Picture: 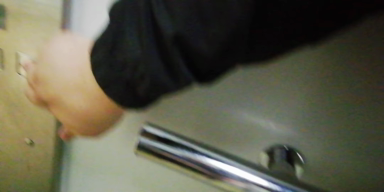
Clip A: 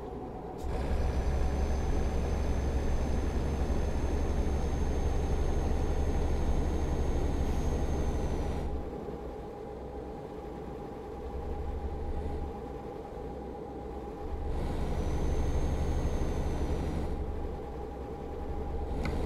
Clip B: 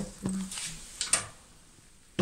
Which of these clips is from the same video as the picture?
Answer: B